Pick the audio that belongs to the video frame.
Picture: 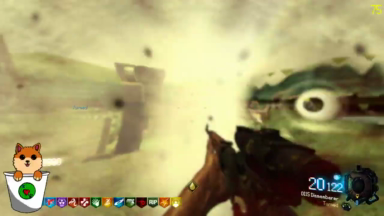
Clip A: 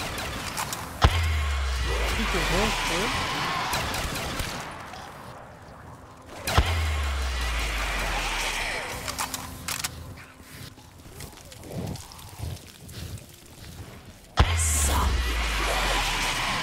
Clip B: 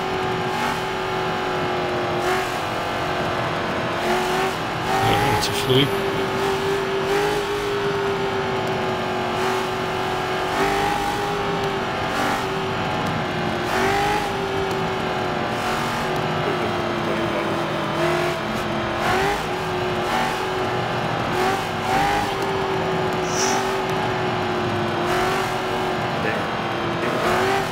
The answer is A